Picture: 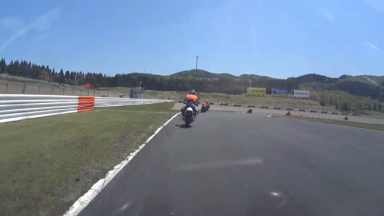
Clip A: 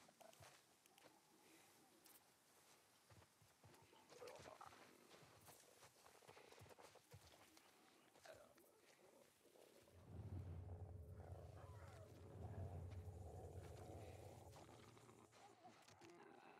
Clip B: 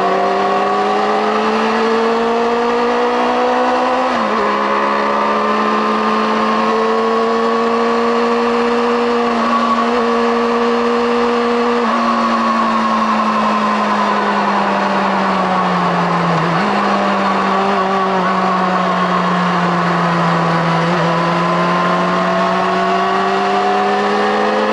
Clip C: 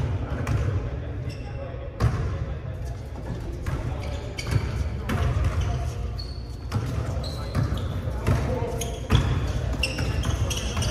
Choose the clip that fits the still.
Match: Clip B